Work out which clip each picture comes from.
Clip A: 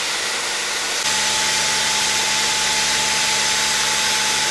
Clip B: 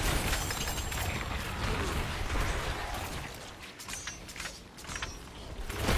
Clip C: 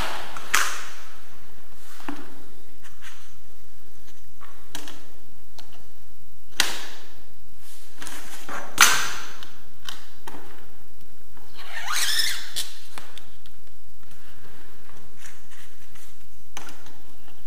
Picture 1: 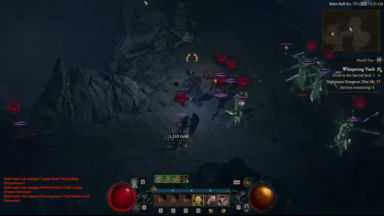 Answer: B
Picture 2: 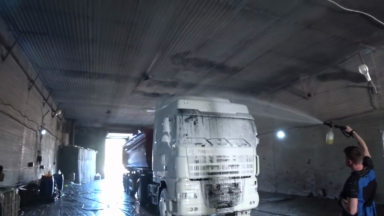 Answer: A